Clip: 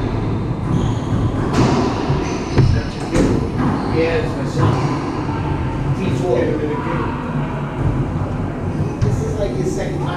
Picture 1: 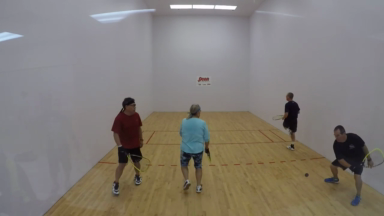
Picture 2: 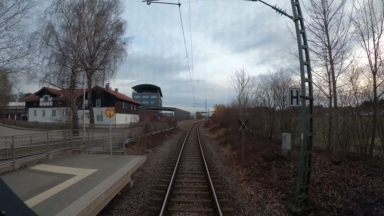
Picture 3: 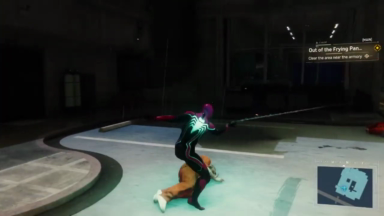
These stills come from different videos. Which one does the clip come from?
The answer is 1